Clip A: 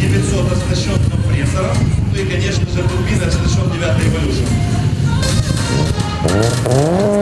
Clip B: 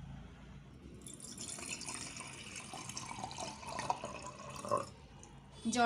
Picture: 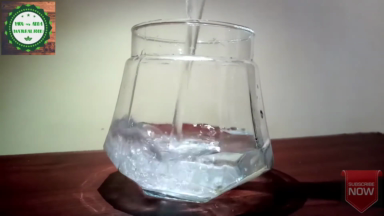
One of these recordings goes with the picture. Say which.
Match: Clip B